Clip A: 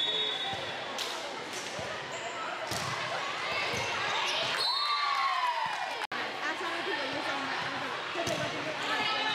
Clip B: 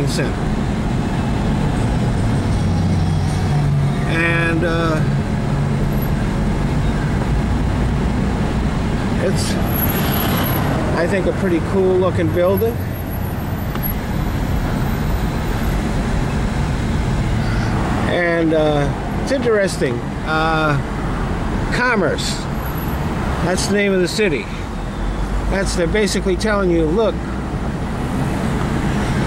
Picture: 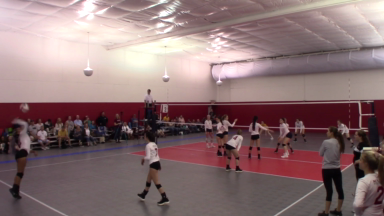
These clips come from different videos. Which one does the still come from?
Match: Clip A